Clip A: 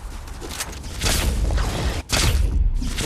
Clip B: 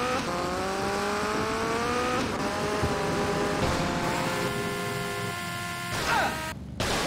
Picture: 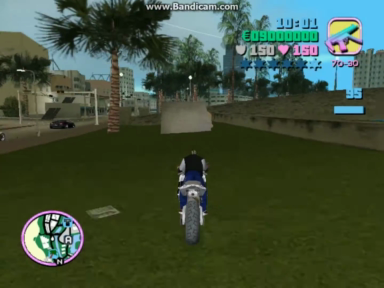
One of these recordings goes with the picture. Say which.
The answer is B